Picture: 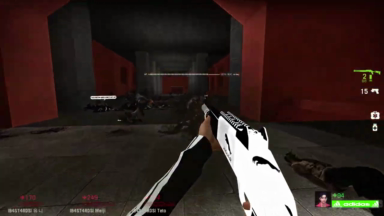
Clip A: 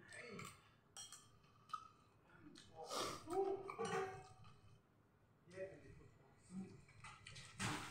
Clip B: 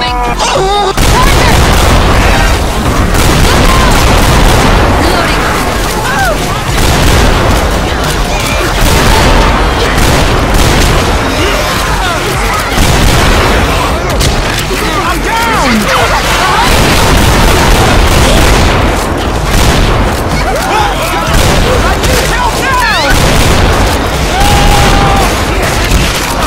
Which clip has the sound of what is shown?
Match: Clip B